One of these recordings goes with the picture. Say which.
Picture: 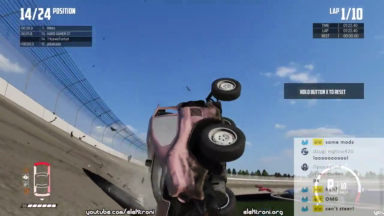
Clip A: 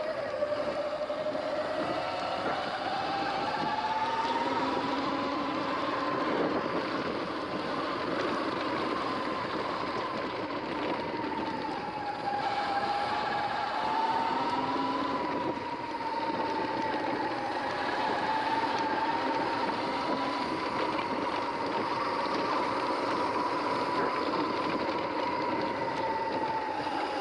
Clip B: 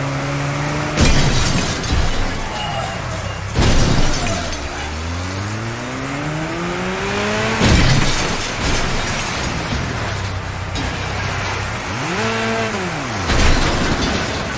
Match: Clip B